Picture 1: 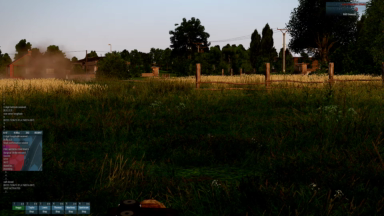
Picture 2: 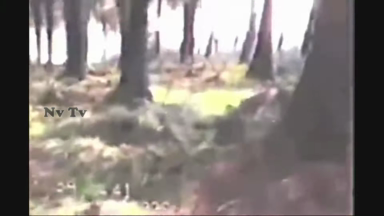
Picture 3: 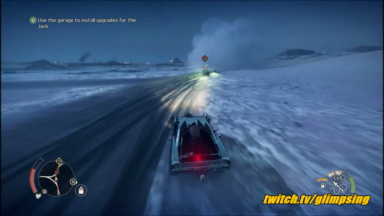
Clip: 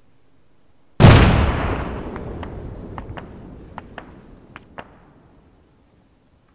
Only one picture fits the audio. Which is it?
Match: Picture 1